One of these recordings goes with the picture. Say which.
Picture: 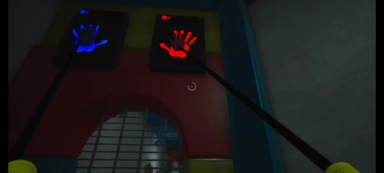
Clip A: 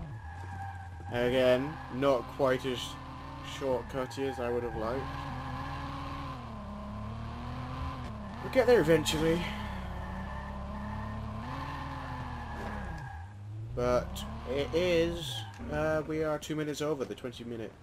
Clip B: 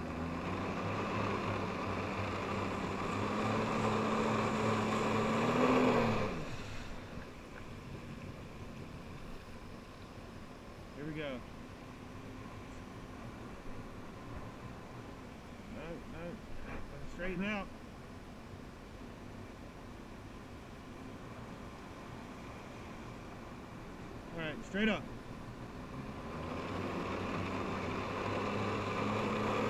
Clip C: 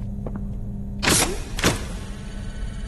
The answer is C